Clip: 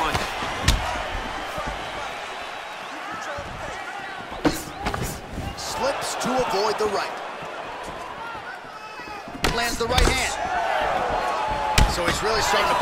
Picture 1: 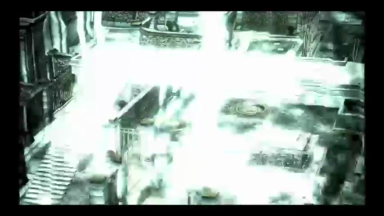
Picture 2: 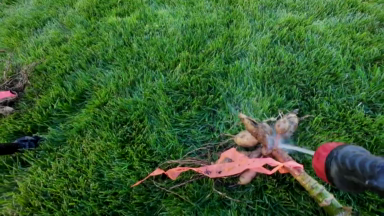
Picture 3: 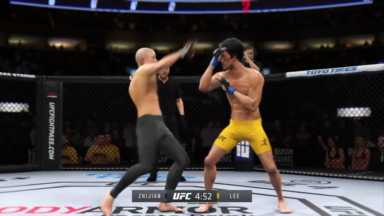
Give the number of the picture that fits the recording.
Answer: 3